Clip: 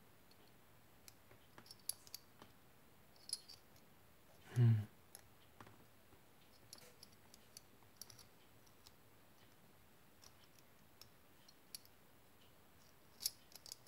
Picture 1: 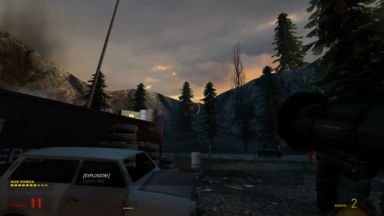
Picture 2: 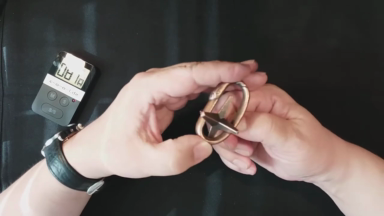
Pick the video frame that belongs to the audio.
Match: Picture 2